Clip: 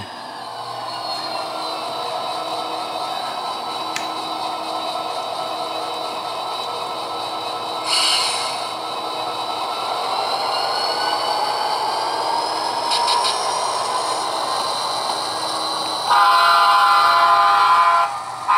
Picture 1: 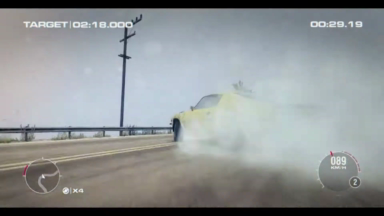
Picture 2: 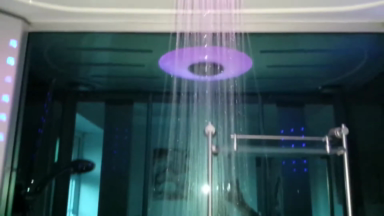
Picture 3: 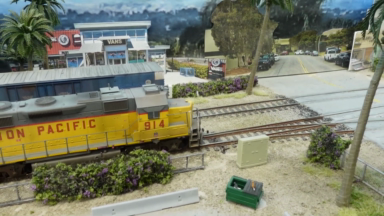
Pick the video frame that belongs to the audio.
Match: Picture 3